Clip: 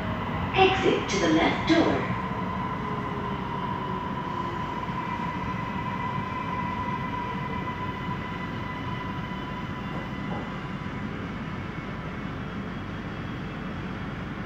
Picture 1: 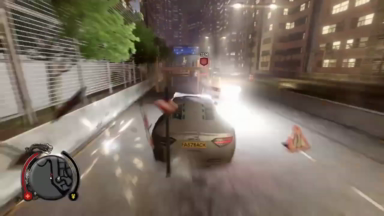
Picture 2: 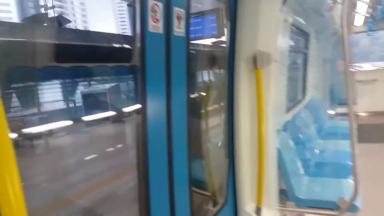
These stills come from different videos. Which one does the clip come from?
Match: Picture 2